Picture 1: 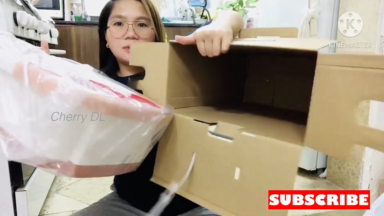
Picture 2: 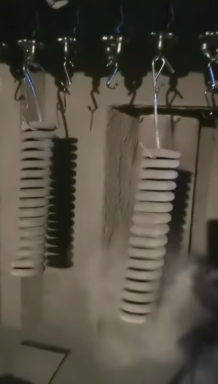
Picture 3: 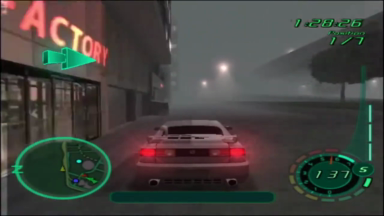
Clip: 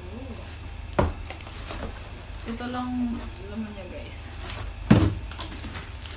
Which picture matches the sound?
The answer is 1